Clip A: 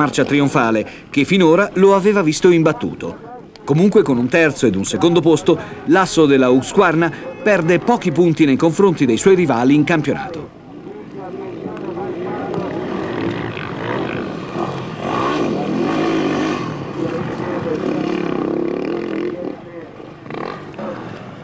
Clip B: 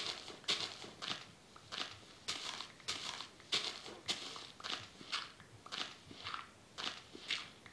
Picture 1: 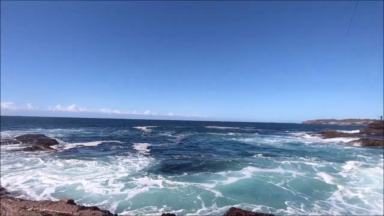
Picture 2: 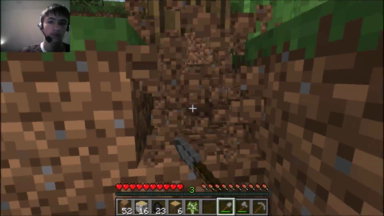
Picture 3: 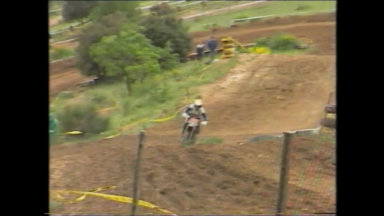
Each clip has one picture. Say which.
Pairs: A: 3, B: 2